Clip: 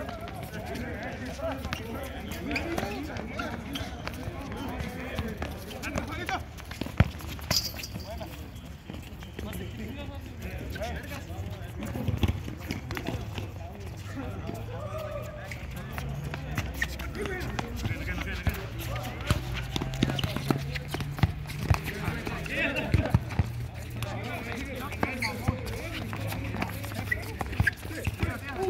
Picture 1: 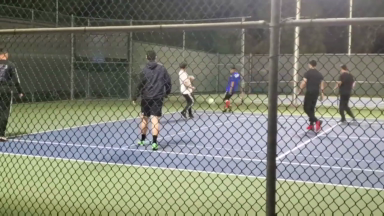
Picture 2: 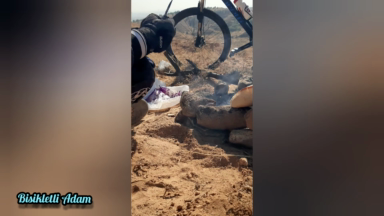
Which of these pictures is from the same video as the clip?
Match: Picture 1